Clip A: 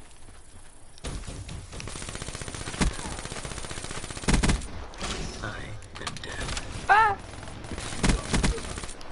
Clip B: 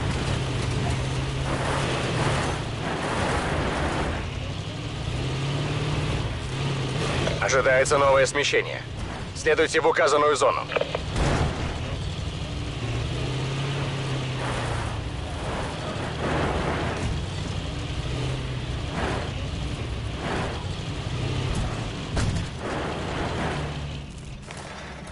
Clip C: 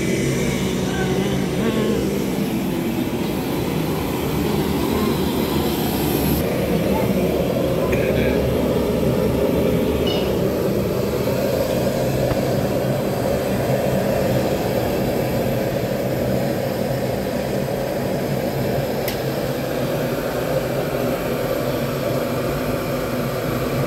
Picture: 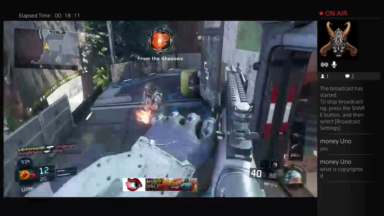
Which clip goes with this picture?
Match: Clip A